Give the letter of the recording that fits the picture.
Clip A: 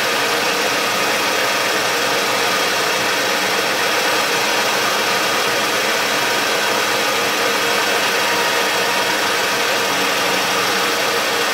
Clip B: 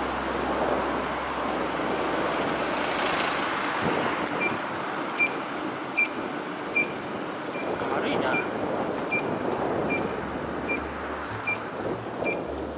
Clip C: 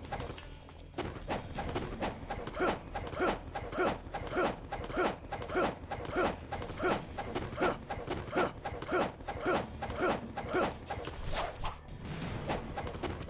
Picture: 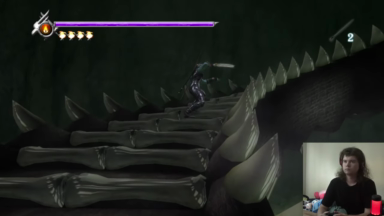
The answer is C